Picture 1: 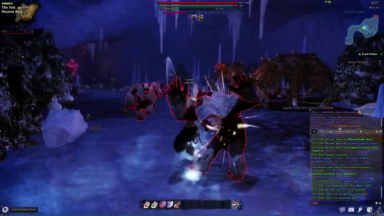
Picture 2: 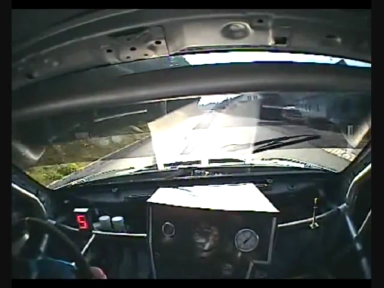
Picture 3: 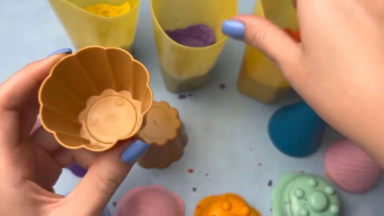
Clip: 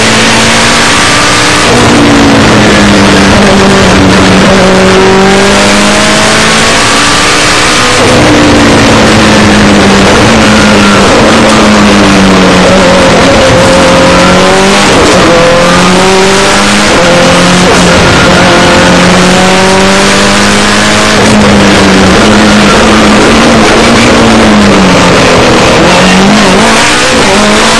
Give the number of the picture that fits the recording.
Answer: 2